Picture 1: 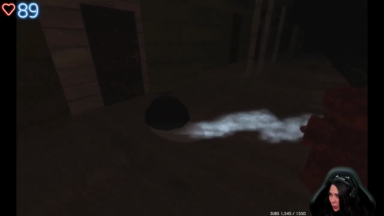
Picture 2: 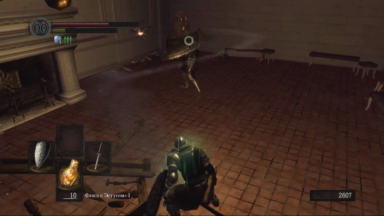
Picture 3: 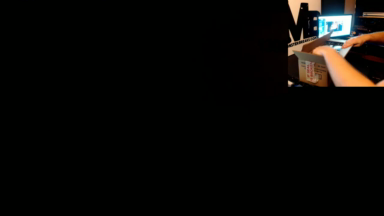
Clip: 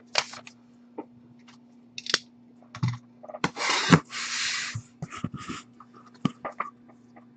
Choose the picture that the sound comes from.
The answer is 3